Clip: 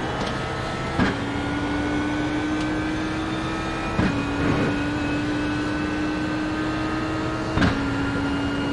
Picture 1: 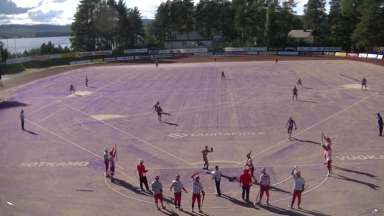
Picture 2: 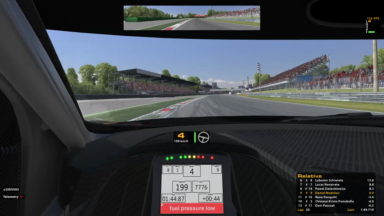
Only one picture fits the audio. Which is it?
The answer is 2